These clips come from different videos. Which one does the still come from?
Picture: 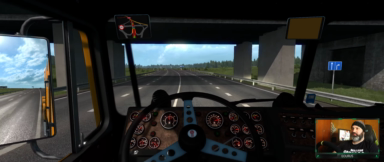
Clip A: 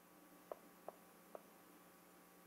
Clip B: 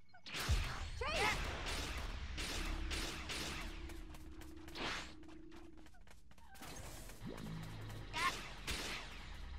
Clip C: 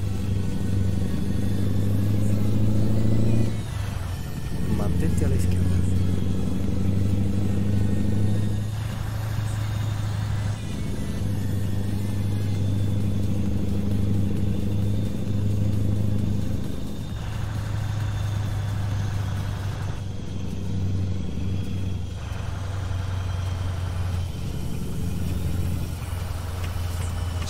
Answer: C